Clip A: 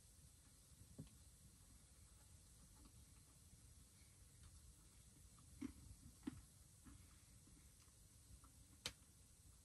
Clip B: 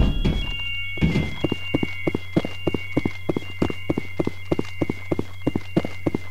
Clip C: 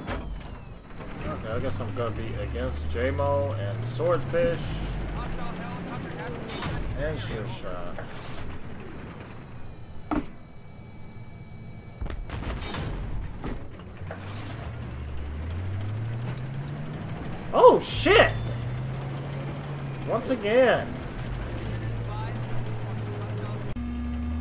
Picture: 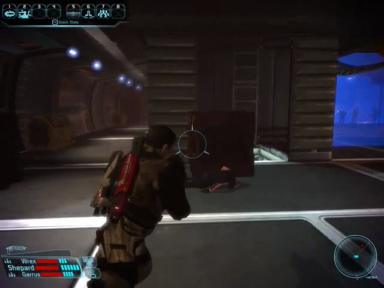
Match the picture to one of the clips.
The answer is B